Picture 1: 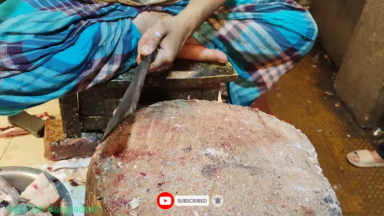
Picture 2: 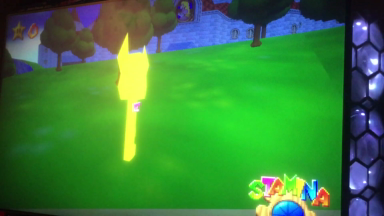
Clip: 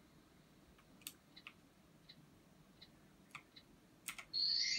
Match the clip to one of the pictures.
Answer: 2